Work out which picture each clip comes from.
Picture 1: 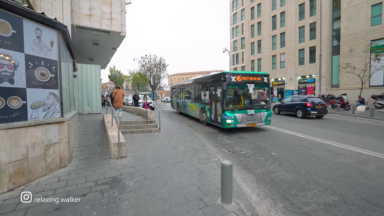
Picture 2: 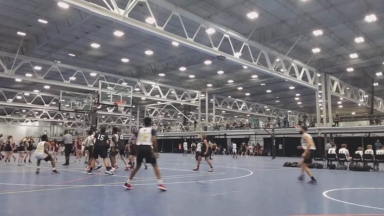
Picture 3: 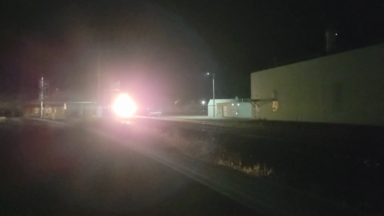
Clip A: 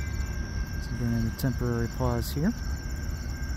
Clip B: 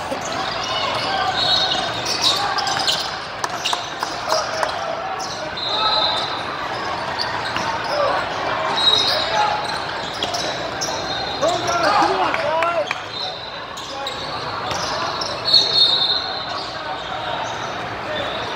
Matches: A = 3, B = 2